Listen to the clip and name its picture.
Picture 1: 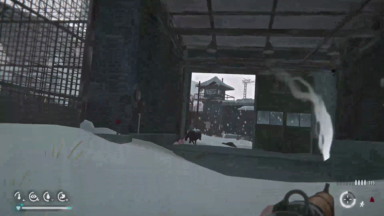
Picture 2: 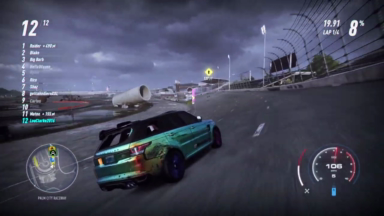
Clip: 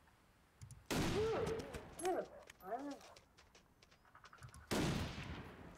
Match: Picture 1